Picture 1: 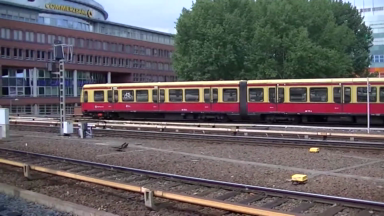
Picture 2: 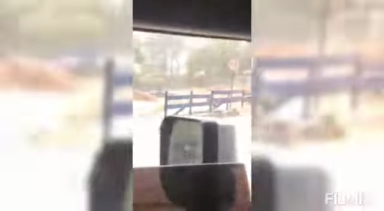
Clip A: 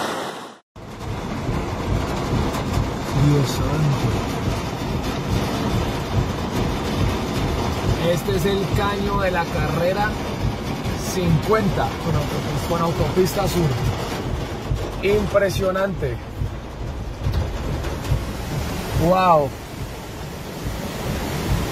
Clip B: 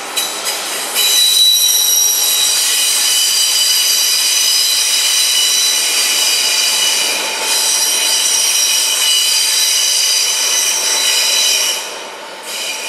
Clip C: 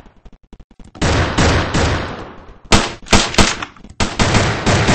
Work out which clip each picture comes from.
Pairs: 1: B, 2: A